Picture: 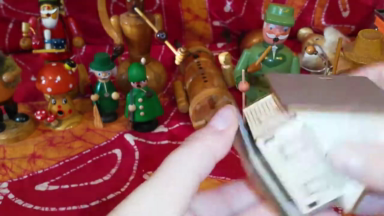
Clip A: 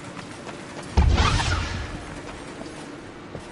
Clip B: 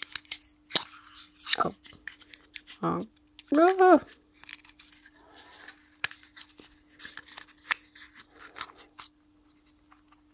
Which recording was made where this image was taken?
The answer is B